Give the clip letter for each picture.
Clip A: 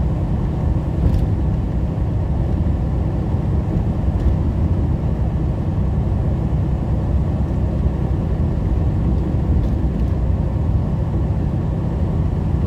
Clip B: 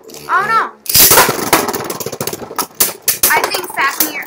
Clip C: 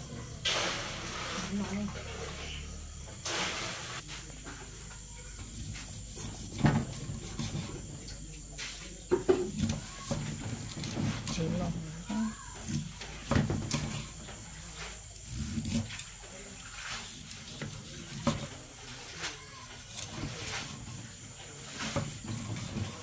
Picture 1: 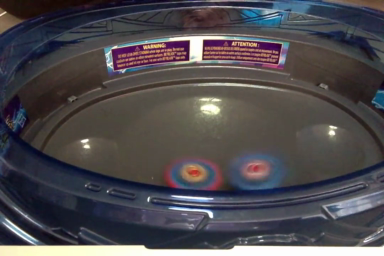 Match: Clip B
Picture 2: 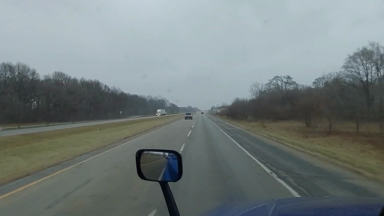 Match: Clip A